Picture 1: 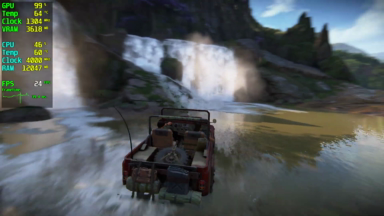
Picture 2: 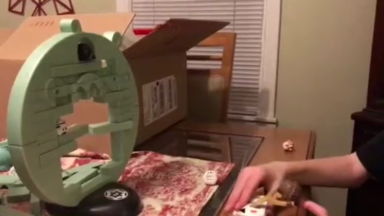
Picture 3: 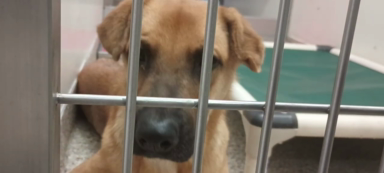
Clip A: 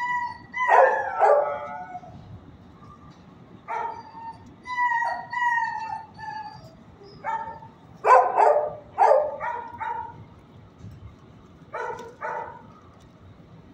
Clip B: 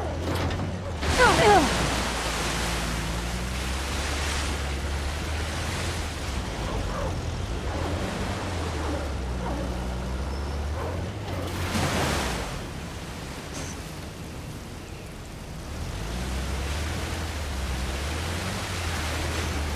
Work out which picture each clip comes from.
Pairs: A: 3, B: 1